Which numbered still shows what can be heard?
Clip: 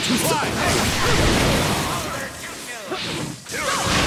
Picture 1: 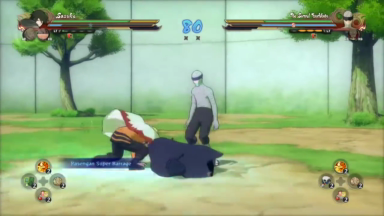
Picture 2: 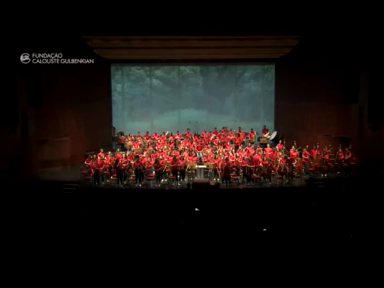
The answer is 1